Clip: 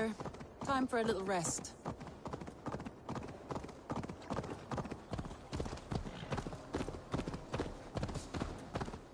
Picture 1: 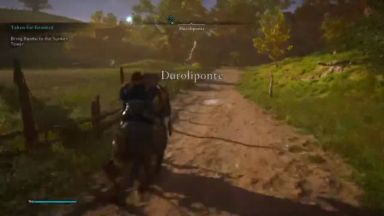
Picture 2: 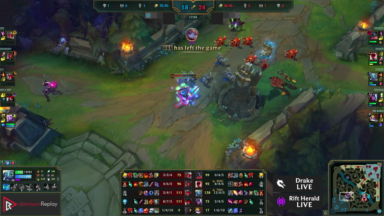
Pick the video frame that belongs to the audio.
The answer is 1